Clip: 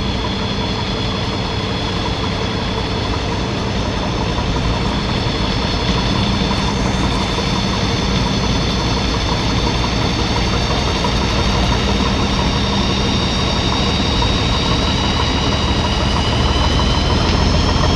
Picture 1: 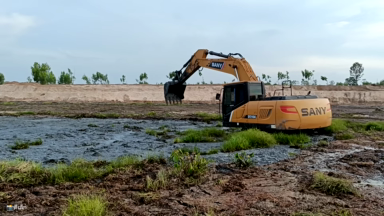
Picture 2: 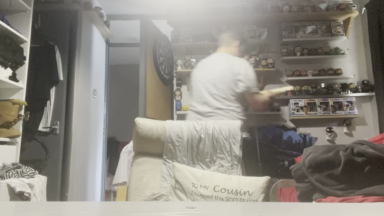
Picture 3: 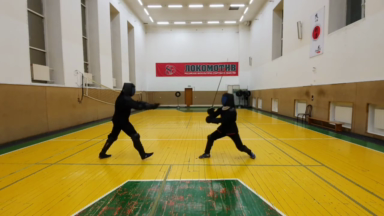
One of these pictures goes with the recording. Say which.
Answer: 1